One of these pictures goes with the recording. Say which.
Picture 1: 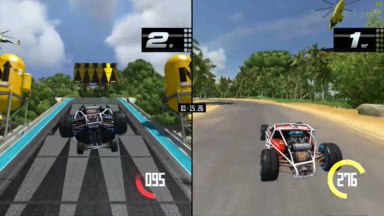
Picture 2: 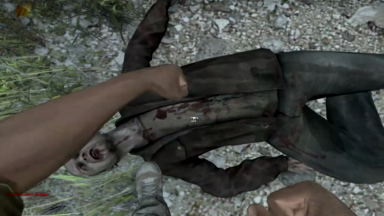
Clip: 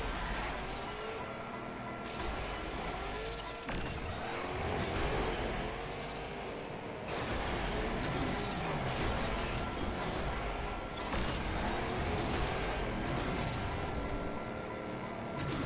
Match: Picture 1